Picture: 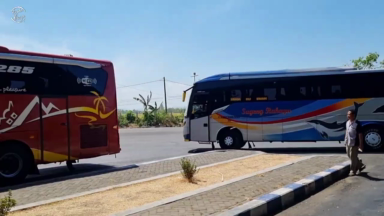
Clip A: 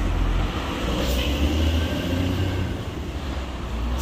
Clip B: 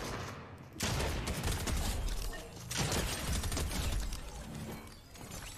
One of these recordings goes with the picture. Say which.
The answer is A